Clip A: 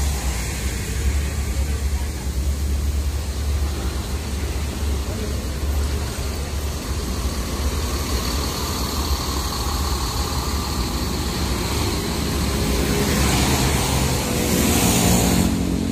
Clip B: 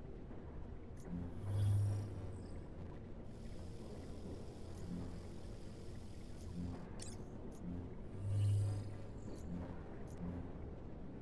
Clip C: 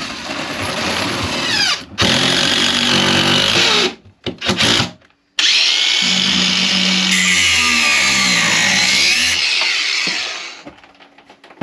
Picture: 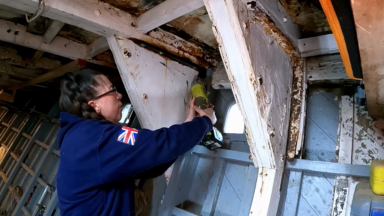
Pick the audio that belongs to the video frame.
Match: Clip C